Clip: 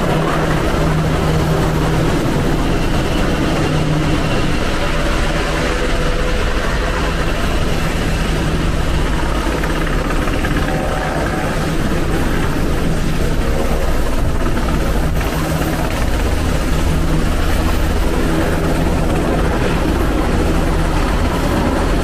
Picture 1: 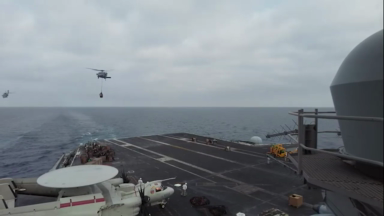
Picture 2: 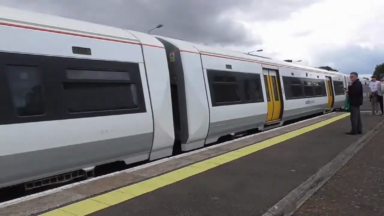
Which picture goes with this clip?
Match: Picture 1